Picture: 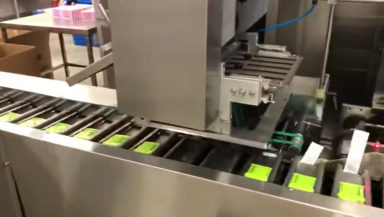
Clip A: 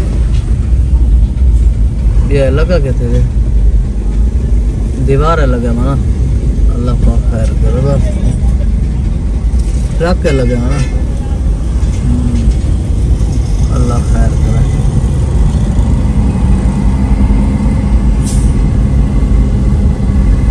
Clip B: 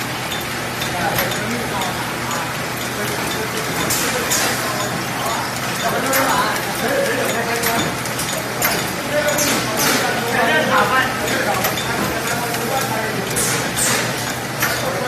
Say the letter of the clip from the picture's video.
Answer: B